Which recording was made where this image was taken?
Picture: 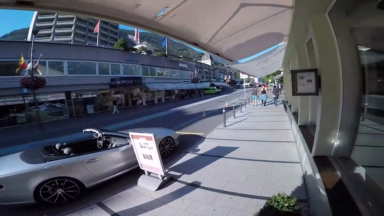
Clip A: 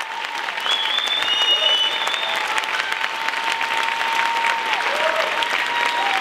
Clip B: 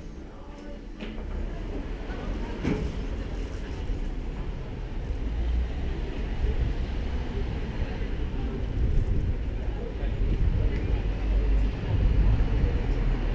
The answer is B